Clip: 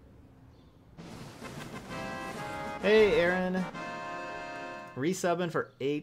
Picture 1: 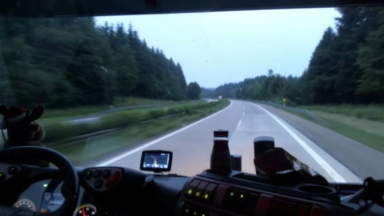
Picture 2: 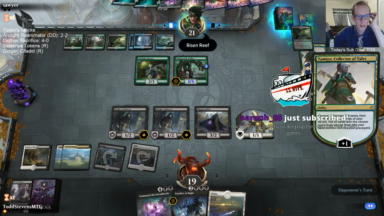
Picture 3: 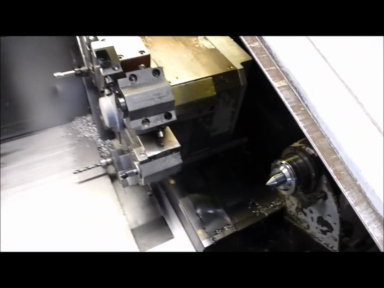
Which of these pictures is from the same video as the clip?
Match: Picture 2